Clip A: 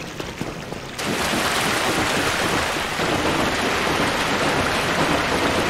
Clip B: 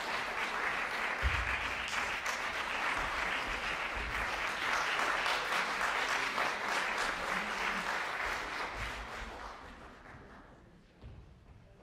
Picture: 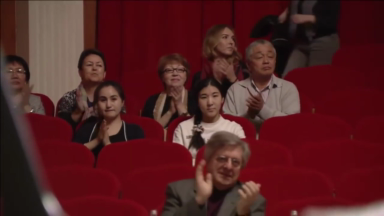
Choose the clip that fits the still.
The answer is B